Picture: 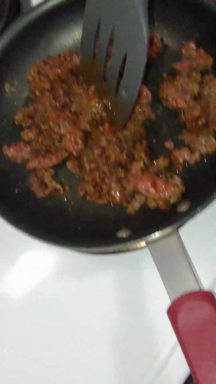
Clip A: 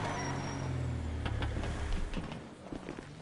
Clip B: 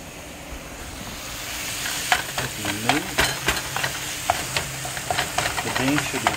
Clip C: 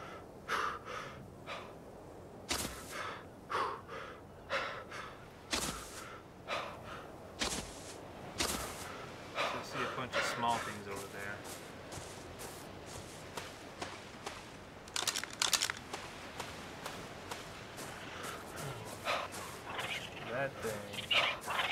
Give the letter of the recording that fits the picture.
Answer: B